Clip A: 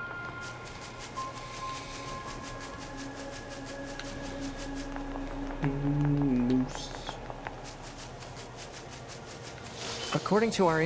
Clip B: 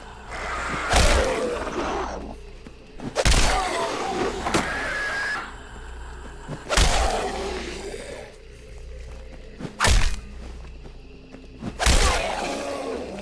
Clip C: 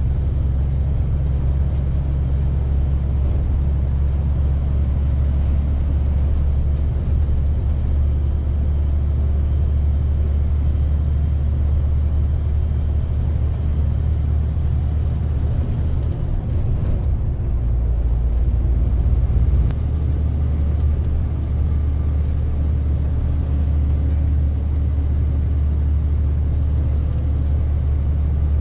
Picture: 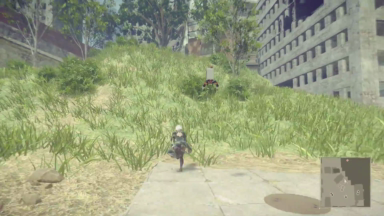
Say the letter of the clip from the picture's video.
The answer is A